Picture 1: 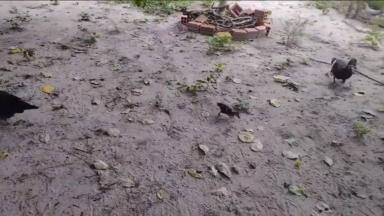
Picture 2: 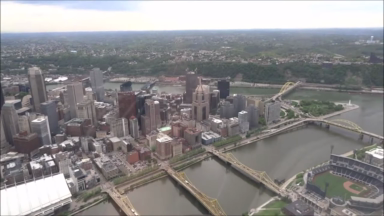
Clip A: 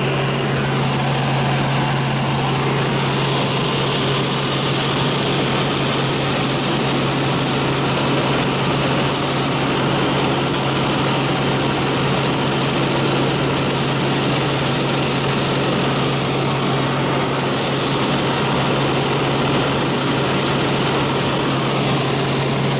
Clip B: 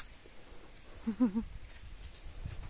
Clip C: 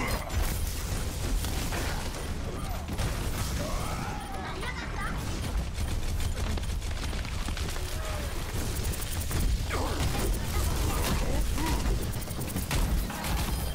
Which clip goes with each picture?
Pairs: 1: B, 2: A